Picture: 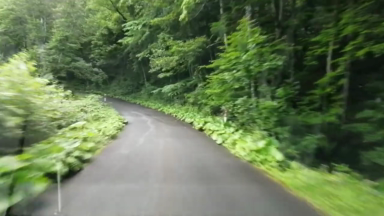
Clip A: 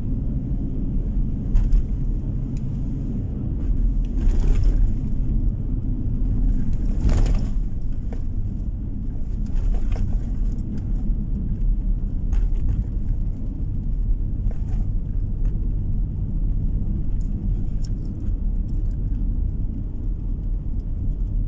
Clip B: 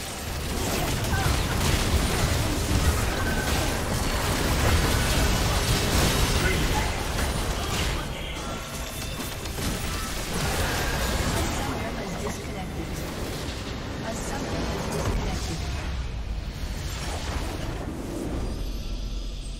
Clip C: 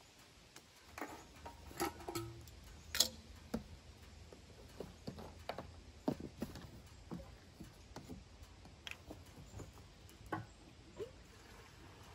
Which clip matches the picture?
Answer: A